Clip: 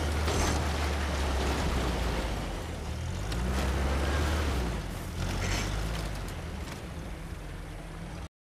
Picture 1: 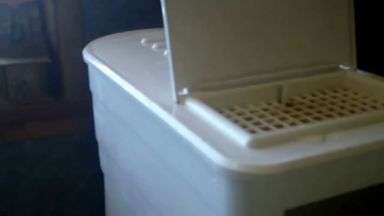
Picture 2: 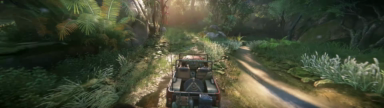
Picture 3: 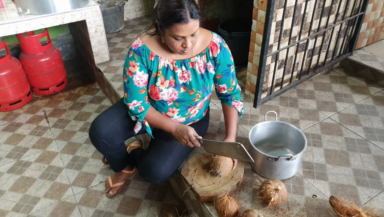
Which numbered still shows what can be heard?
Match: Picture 2